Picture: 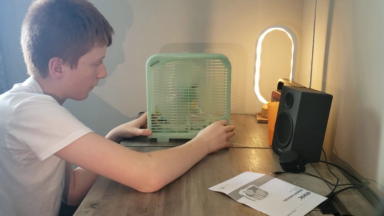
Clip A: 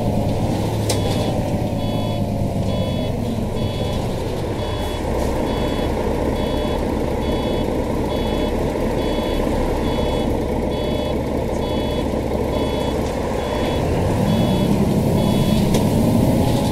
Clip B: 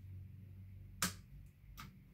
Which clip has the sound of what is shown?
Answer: B